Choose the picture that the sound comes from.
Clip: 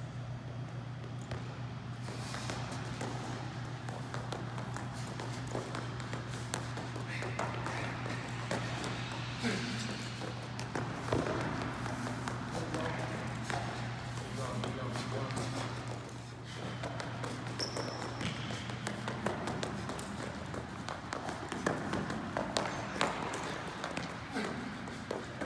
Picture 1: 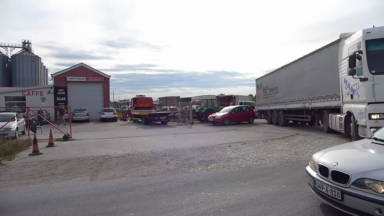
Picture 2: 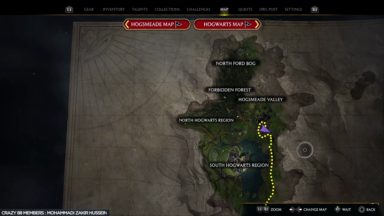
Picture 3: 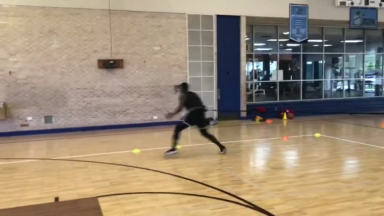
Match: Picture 3